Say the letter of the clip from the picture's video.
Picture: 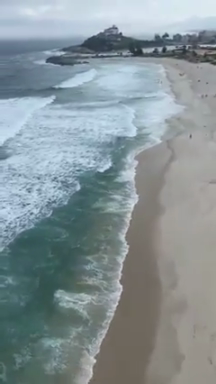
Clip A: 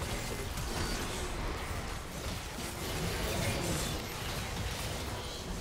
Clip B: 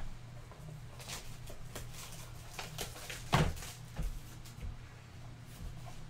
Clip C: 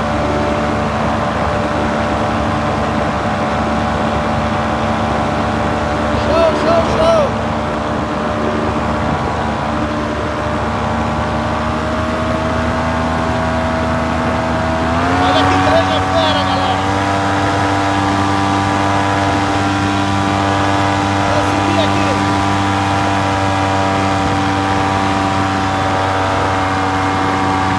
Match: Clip C